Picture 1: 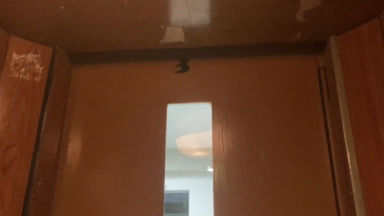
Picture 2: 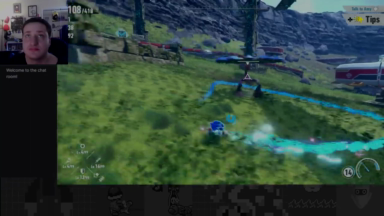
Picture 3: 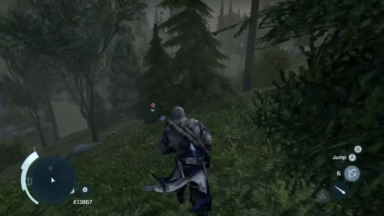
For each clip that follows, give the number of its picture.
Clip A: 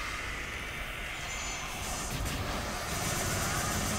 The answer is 2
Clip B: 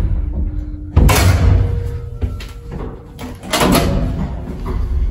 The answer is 1